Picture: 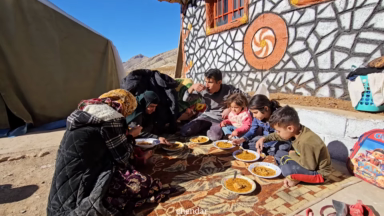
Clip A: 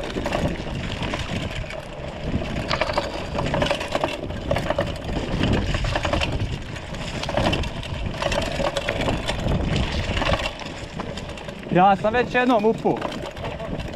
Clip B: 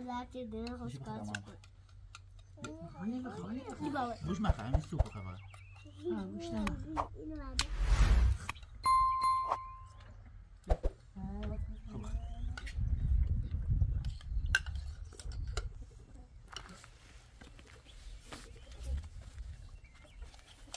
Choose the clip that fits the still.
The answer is B